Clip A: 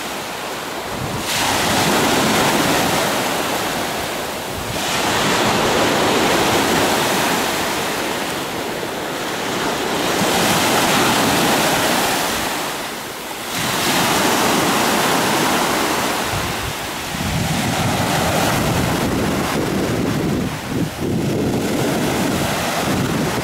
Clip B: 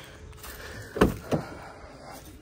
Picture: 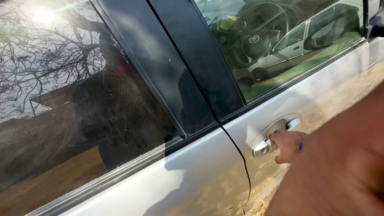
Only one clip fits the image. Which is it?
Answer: B